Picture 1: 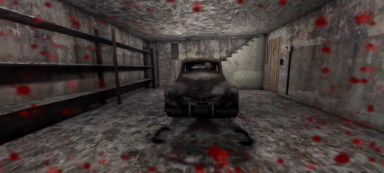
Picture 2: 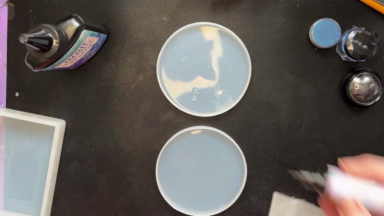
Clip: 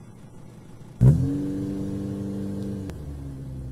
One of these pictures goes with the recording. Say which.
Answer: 1